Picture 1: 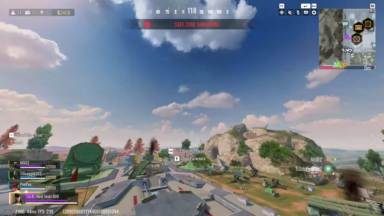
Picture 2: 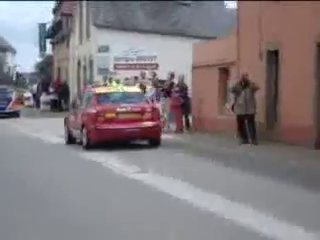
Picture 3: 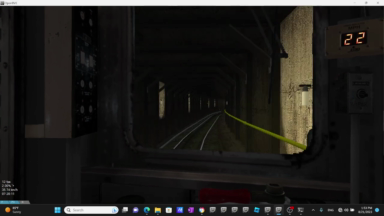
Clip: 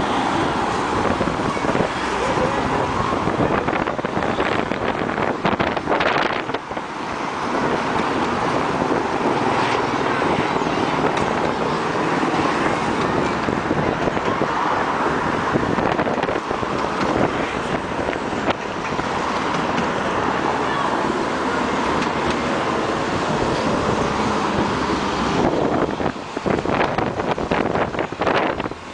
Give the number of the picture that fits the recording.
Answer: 2